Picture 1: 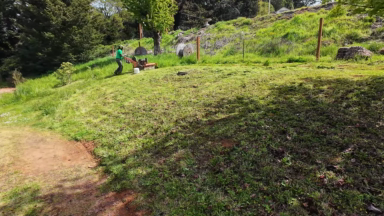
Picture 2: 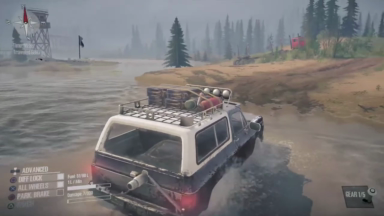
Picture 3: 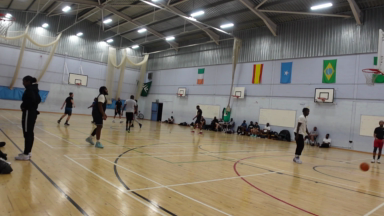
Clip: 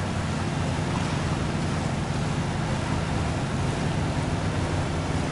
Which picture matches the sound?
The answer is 2